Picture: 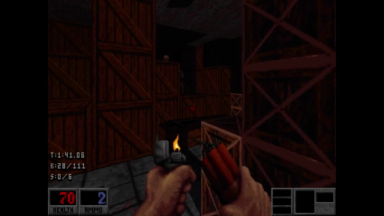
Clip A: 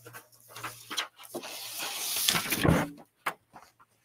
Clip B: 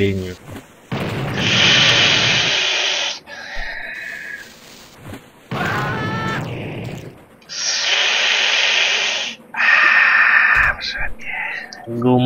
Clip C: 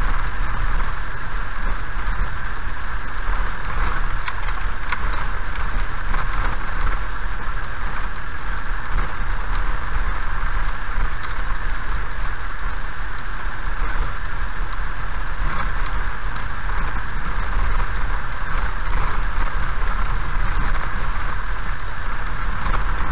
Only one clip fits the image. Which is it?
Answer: B